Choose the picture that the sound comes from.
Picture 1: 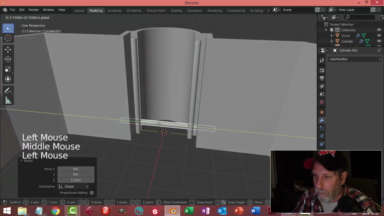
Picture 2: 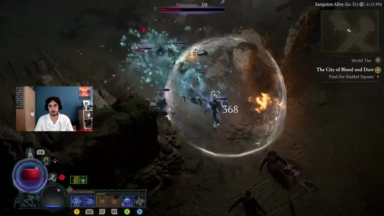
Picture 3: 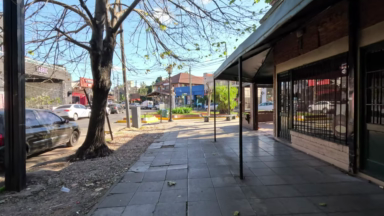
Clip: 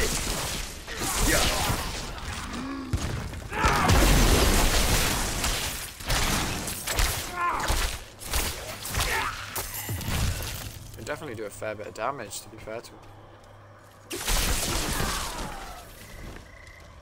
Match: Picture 2